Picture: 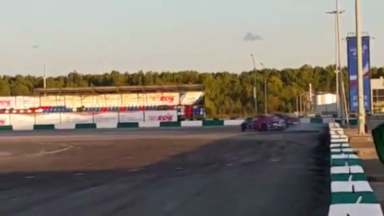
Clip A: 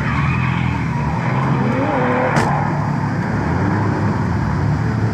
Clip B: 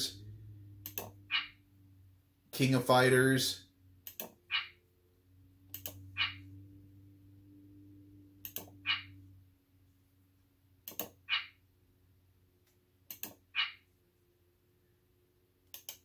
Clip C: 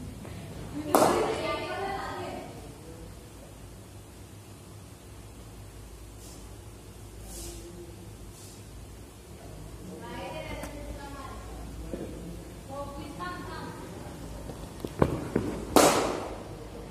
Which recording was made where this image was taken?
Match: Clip A